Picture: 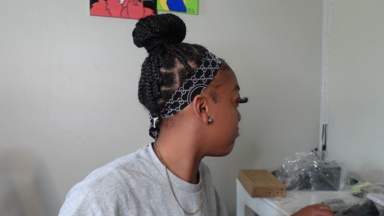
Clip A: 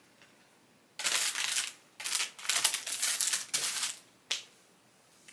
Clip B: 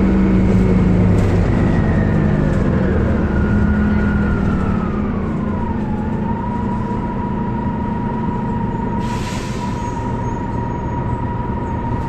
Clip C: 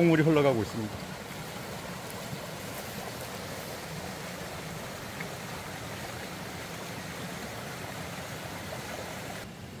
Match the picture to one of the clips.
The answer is A